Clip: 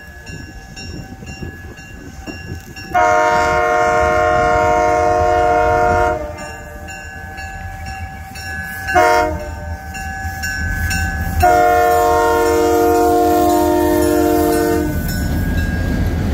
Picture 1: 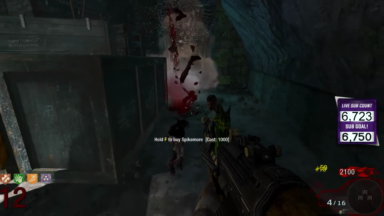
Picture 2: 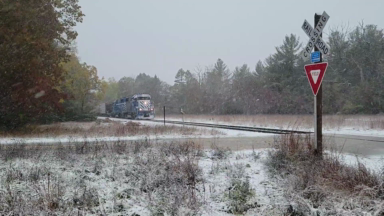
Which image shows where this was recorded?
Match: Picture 2